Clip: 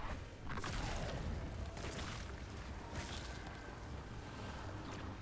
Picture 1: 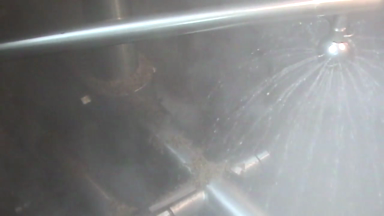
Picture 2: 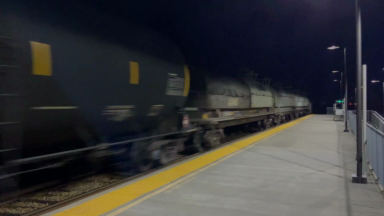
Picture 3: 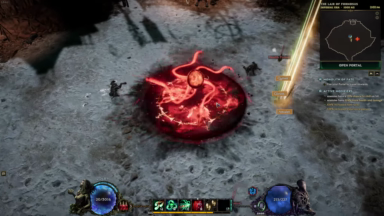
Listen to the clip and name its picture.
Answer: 3